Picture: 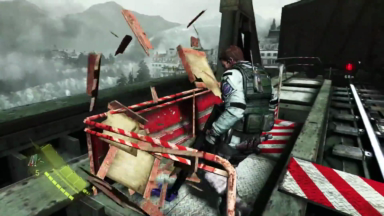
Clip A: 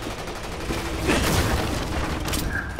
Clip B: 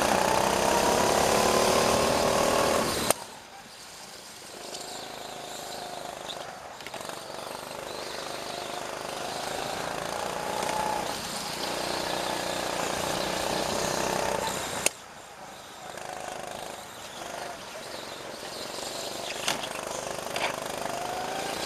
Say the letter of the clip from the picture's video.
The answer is A